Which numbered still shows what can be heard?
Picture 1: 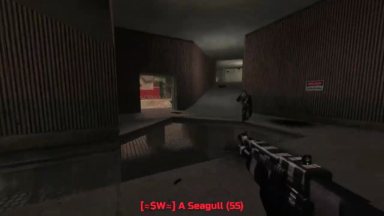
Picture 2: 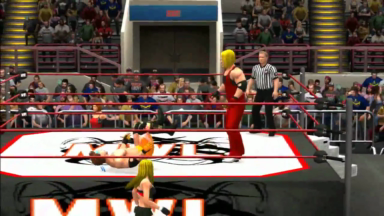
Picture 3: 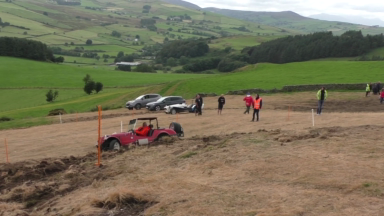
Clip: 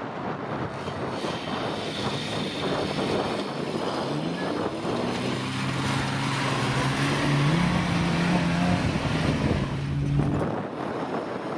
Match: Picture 3